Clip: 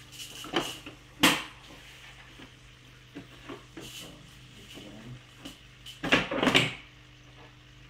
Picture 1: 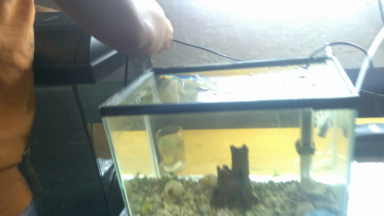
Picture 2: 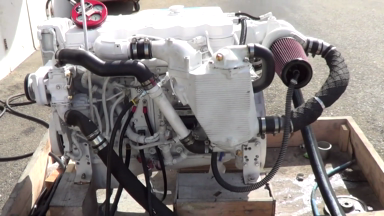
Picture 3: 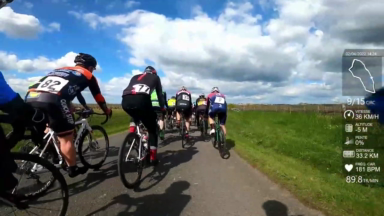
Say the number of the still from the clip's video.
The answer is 1